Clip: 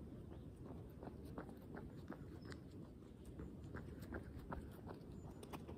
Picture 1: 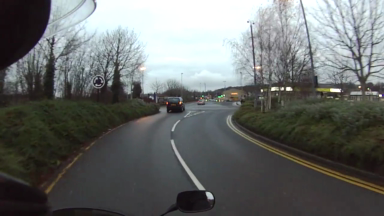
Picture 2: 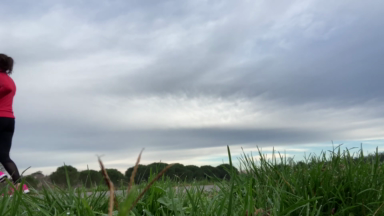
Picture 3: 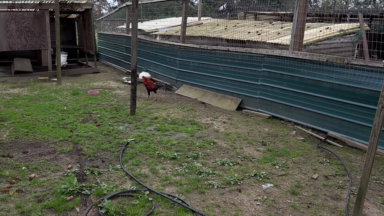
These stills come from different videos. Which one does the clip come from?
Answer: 2